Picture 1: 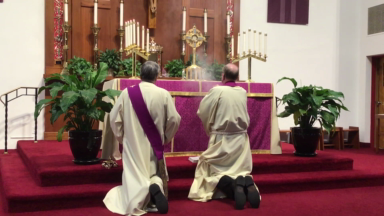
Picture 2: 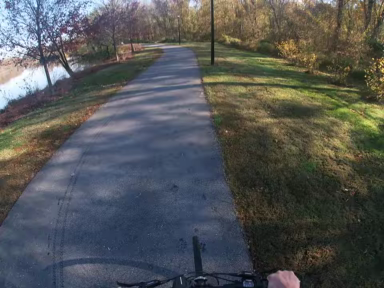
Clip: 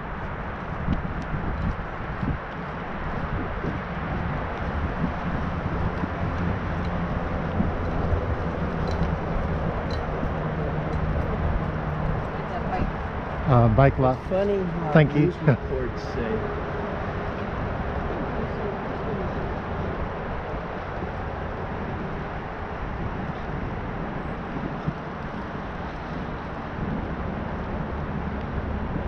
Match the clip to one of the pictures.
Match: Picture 2